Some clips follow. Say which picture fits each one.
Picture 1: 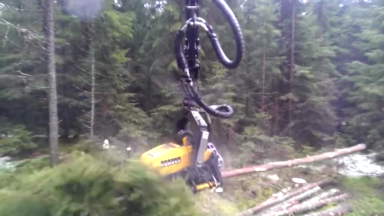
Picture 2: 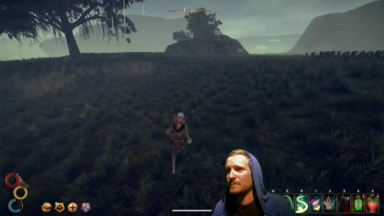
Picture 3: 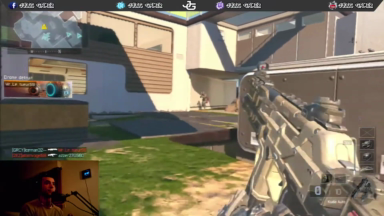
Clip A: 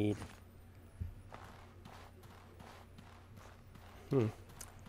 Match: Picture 2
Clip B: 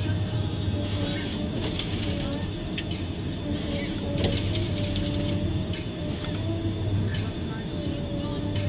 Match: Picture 1